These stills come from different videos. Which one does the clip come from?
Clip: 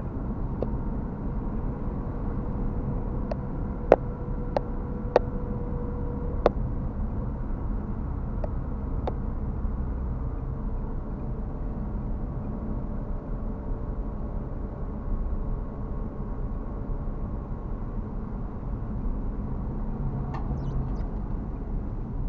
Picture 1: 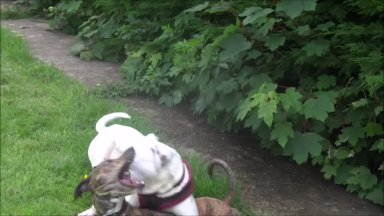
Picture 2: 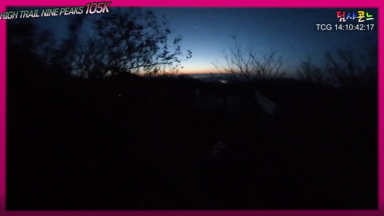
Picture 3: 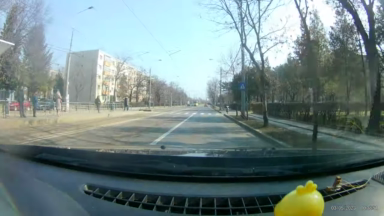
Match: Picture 3